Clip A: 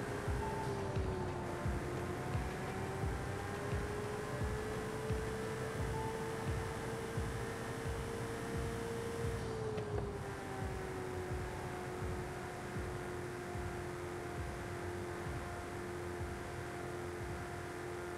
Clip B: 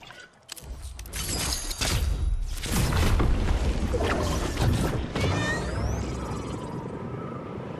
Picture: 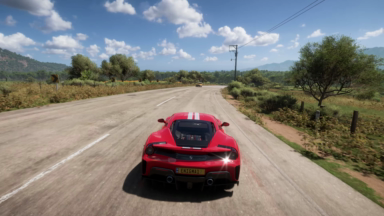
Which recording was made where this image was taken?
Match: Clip A